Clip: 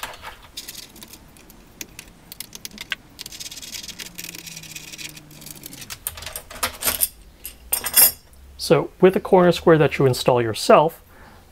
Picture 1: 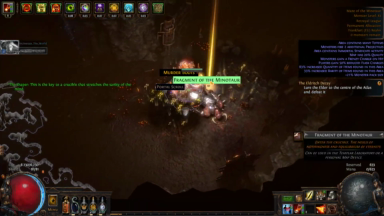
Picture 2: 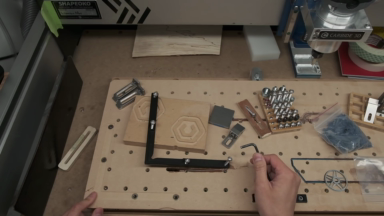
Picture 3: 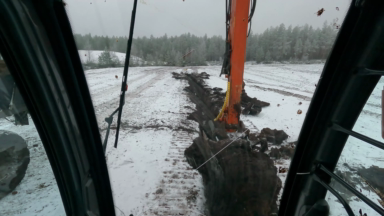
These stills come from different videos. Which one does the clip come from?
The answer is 2